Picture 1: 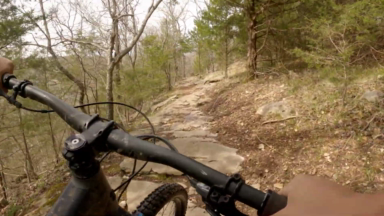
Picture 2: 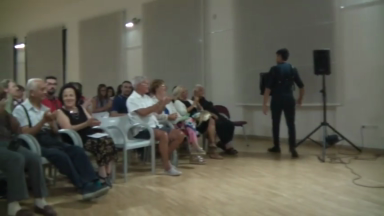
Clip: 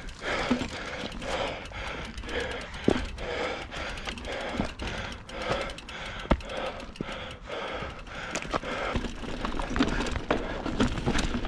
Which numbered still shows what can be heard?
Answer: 1